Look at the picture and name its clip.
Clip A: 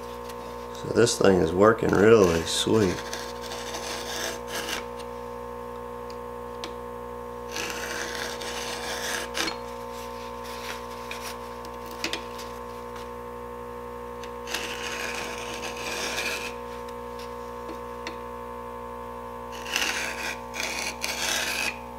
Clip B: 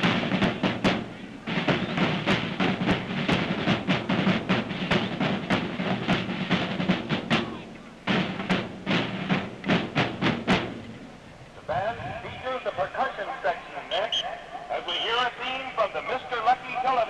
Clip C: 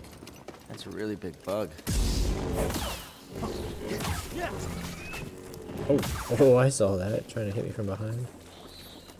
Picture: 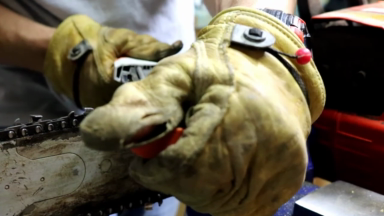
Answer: A